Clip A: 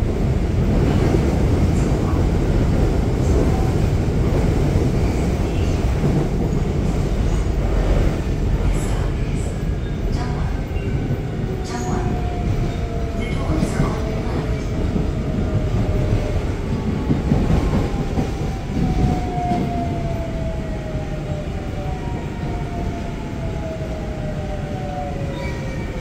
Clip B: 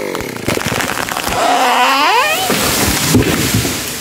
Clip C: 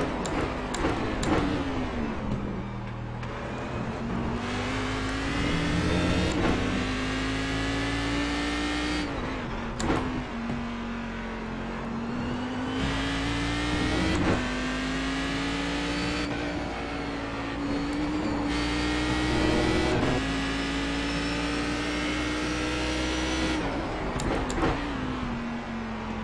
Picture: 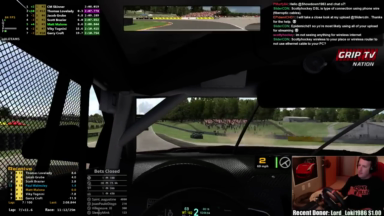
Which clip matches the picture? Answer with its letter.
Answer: C